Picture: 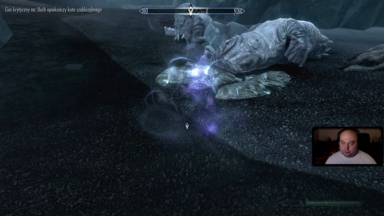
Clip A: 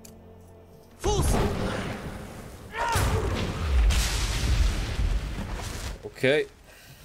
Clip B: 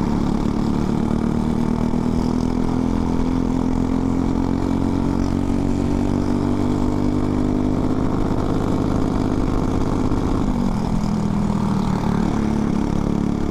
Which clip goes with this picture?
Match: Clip A